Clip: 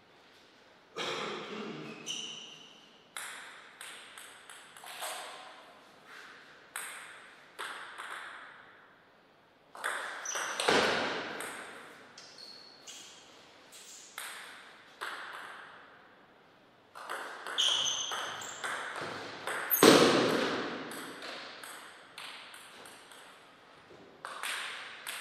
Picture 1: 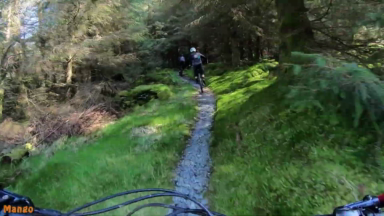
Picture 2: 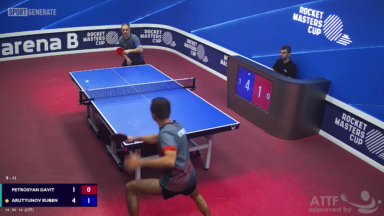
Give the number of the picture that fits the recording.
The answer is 2